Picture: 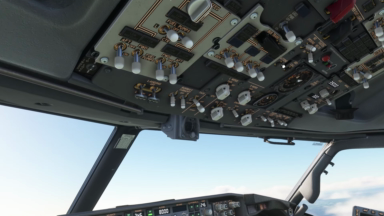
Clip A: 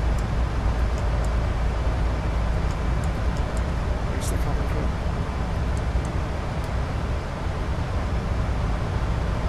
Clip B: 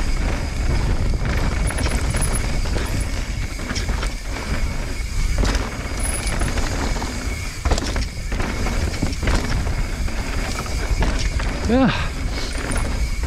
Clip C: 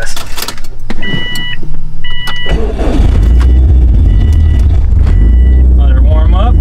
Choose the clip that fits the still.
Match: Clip A